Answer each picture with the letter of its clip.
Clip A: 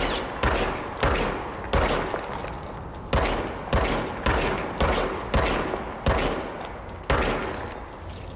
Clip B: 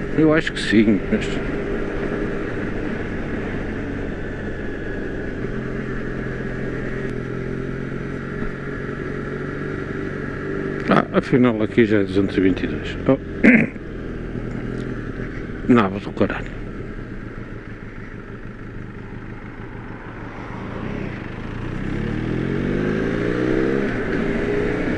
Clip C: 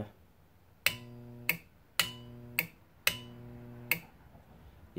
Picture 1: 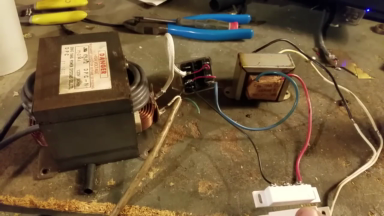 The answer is C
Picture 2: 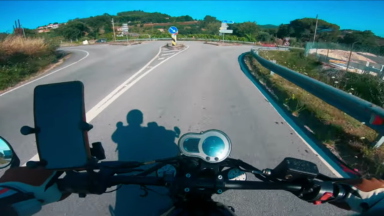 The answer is B